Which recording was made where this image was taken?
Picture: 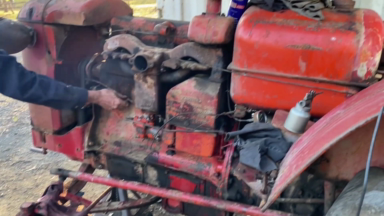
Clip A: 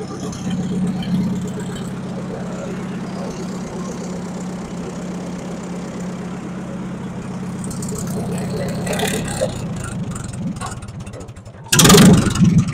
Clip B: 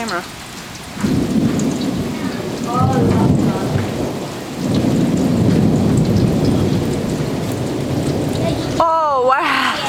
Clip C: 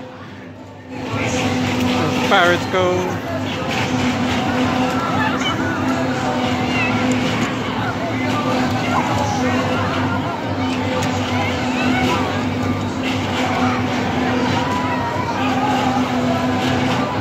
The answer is A